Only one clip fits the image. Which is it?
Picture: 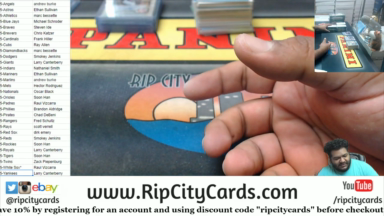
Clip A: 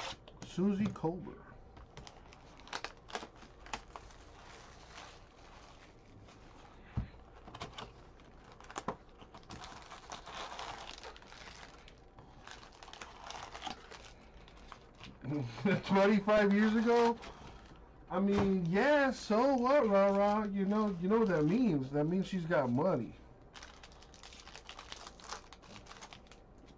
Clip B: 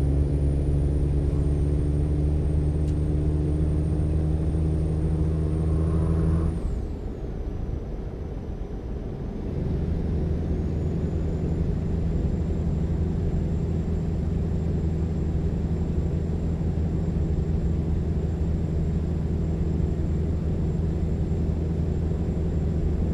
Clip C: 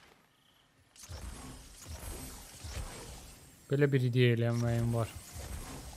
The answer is A